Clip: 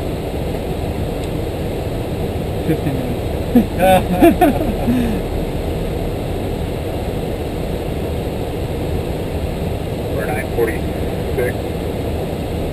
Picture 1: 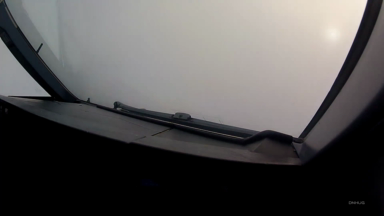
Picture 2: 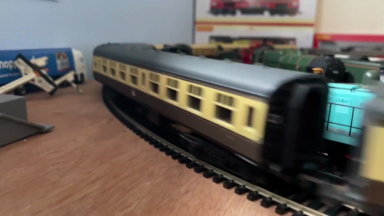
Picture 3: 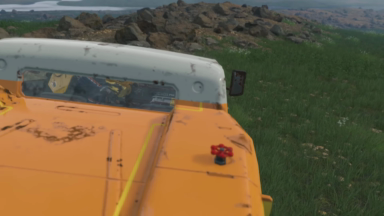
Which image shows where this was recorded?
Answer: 1